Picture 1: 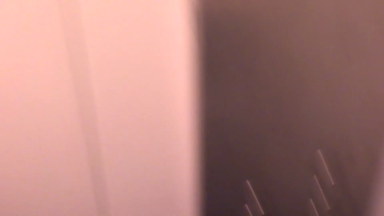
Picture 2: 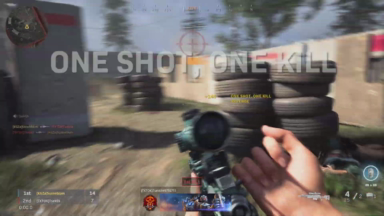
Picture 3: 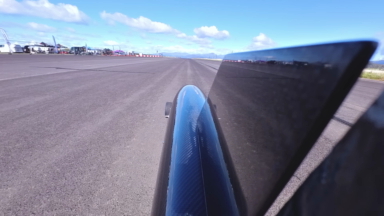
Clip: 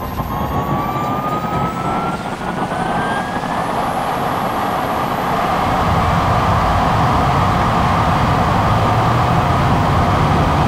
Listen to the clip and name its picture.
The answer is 3